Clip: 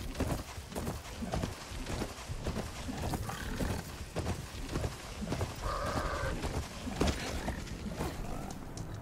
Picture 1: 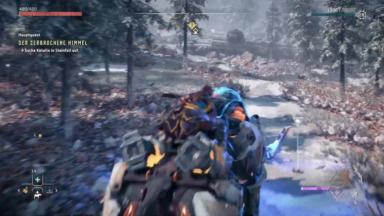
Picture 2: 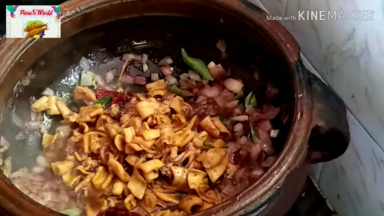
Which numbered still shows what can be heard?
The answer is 1